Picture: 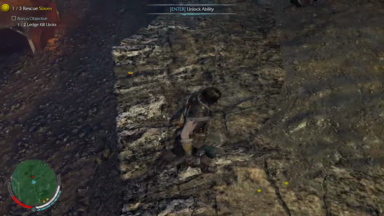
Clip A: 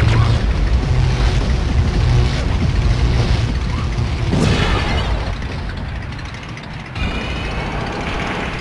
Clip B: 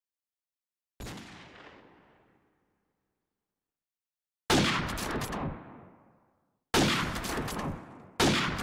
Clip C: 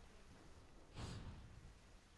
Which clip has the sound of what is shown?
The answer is C